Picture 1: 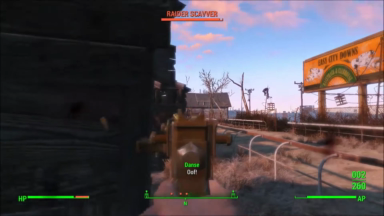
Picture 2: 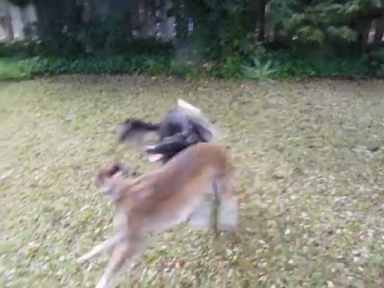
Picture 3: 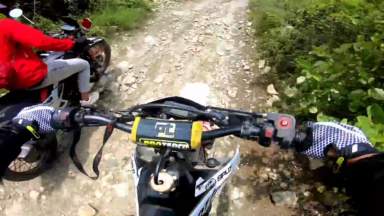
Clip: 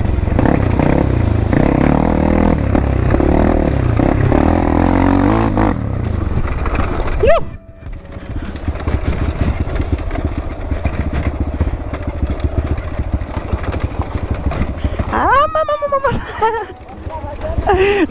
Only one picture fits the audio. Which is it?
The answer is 3